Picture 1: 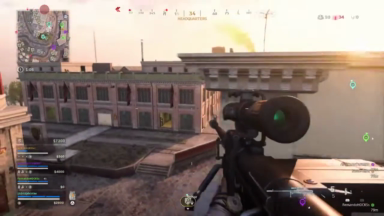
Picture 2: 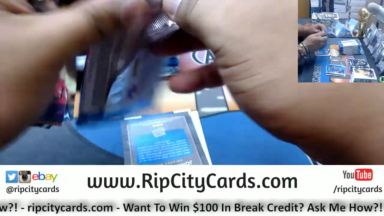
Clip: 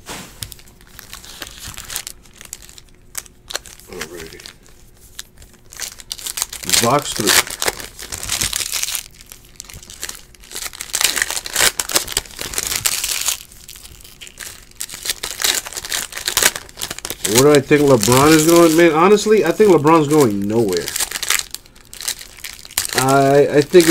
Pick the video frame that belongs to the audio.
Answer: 2